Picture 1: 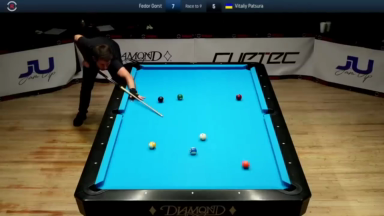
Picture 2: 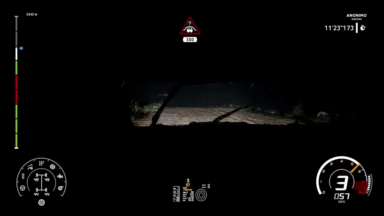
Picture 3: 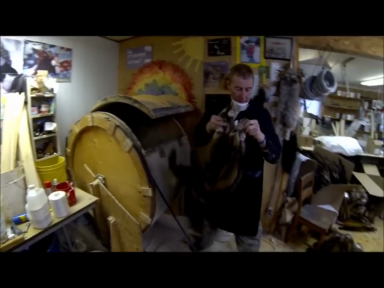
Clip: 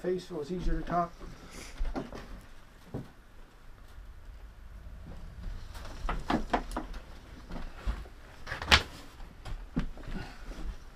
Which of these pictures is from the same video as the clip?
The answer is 3